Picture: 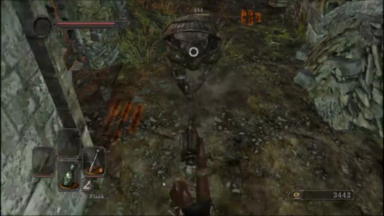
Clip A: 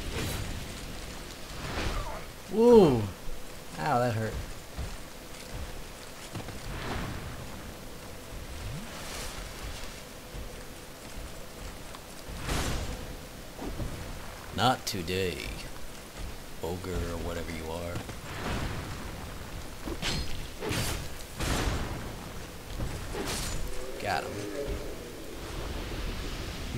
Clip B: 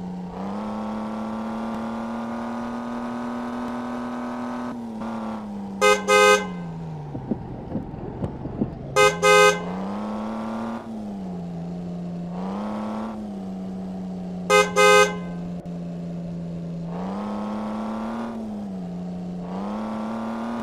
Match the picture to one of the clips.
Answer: A